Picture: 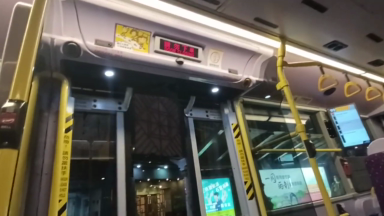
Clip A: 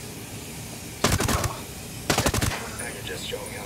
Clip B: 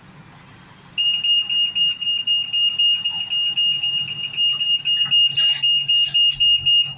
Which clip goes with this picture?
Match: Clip B